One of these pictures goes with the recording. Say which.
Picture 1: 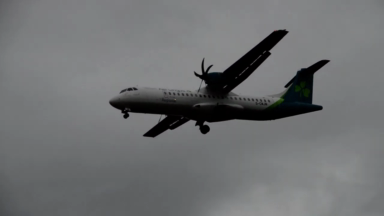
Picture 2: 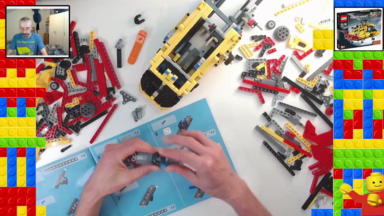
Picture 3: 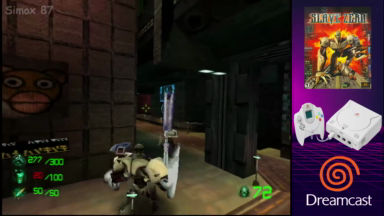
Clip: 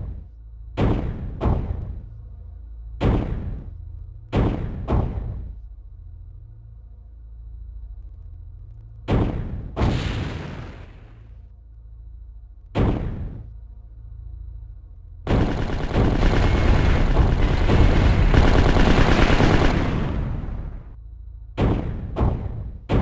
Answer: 3